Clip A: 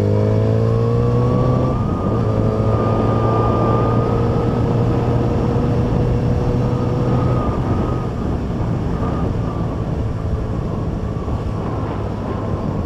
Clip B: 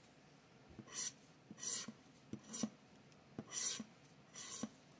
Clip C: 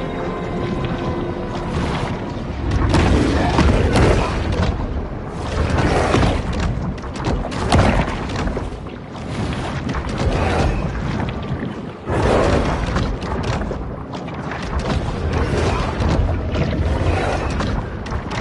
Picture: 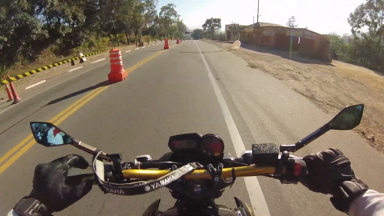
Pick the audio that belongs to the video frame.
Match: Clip A